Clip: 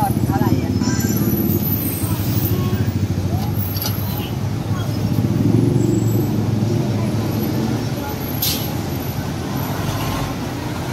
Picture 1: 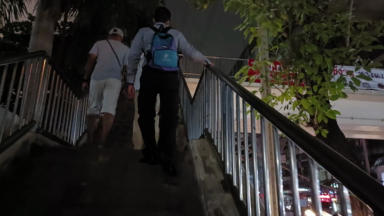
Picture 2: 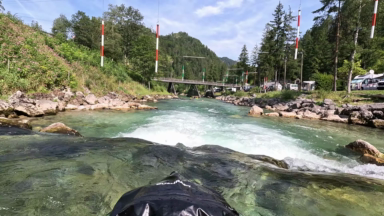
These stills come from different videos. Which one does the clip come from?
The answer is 1